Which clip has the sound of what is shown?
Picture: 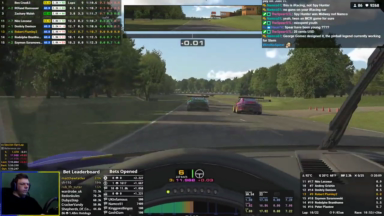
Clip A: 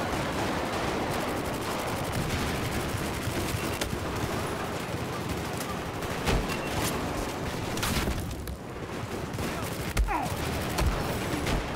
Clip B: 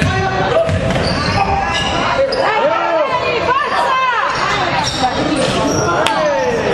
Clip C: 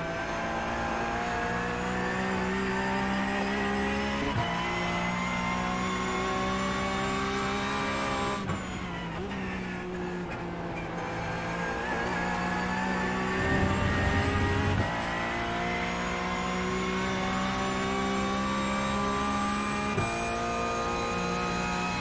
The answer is C